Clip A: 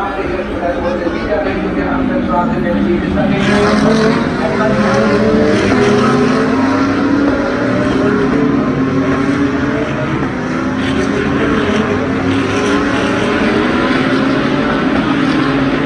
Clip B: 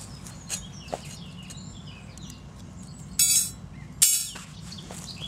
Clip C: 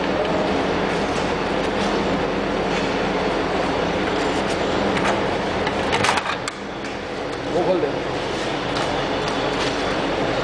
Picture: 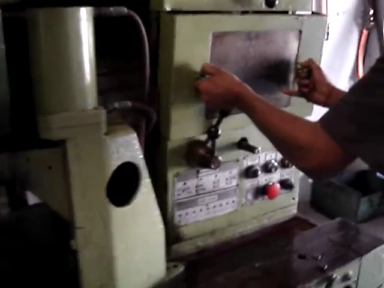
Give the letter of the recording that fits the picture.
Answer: C